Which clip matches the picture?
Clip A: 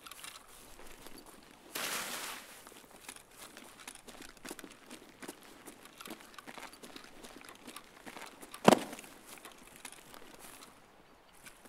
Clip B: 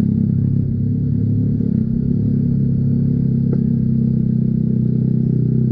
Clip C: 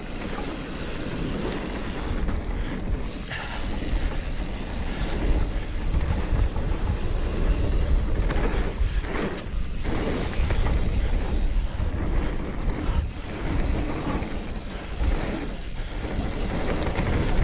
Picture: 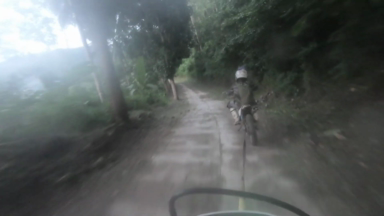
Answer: B